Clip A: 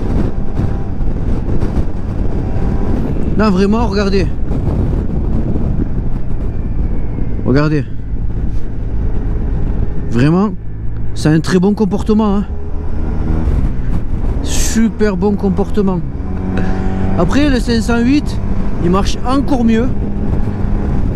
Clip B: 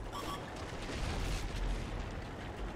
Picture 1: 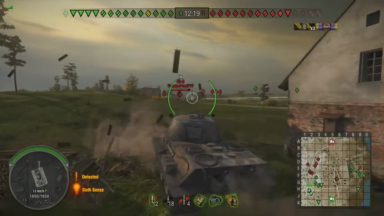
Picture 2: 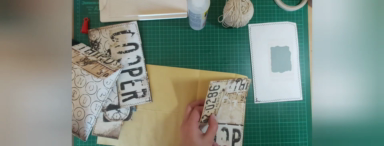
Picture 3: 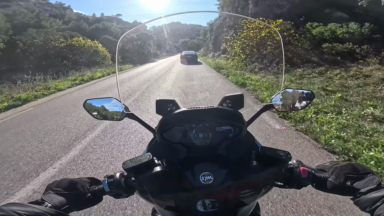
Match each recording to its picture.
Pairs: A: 3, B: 1